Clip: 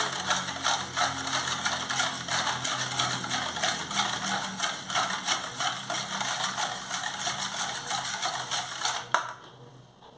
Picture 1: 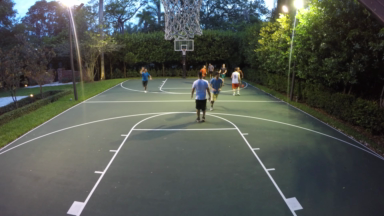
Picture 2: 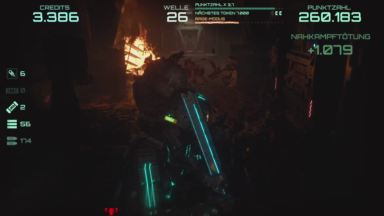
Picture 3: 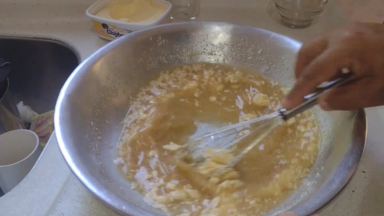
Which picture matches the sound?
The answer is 3